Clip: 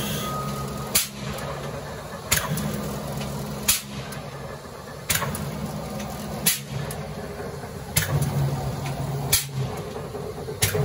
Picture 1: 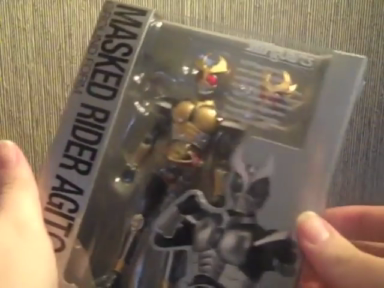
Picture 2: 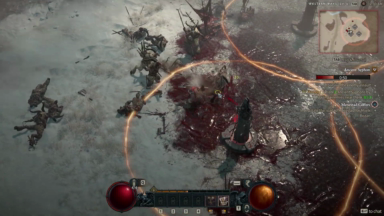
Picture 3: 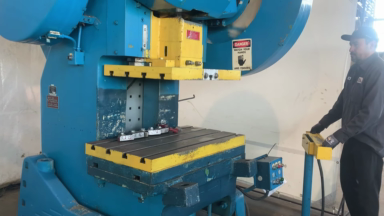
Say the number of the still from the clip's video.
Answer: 3